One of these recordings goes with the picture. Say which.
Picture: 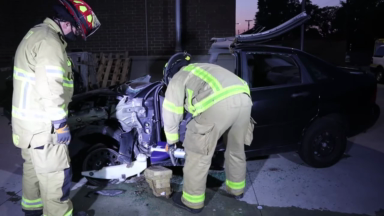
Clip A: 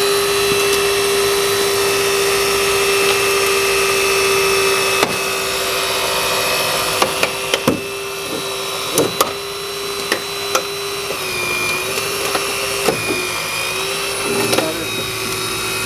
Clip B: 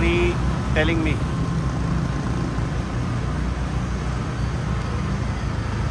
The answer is A